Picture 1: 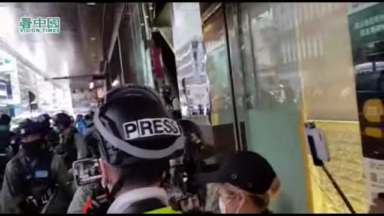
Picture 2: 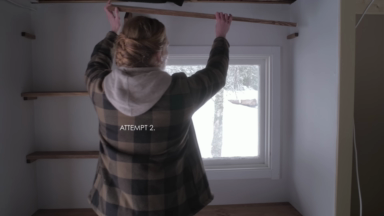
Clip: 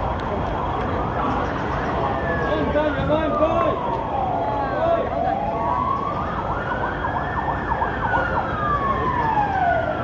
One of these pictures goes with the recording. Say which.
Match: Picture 1